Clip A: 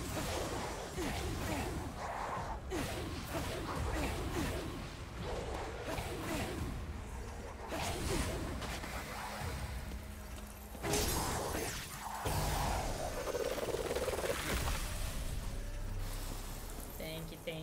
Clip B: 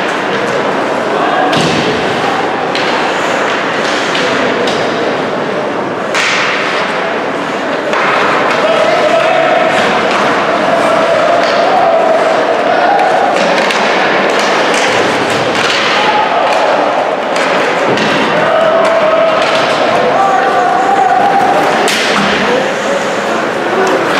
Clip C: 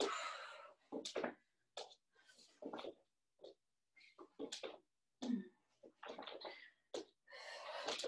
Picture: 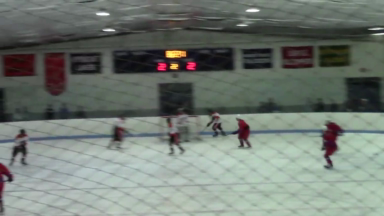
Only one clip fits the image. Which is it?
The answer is B